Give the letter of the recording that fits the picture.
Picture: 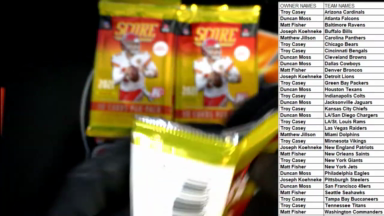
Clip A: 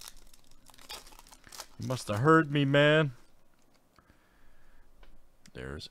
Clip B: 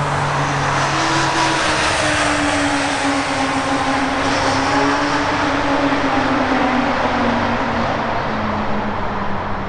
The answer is A